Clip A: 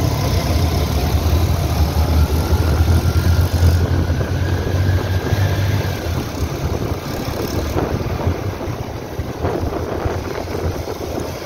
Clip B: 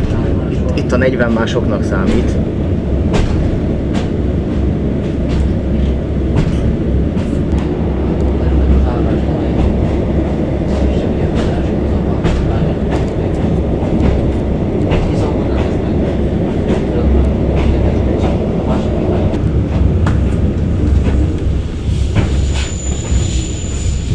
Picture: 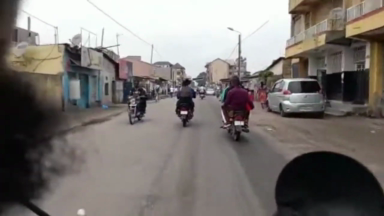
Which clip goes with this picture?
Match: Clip A